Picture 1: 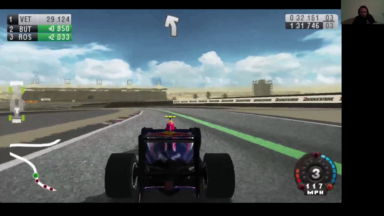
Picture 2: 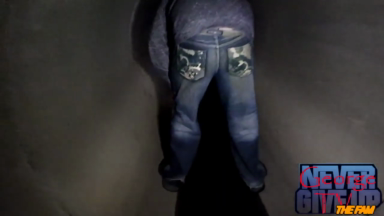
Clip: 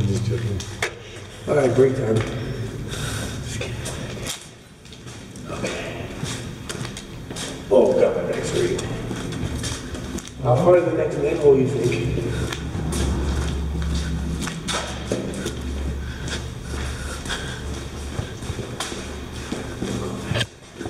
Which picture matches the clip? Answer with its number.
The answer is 2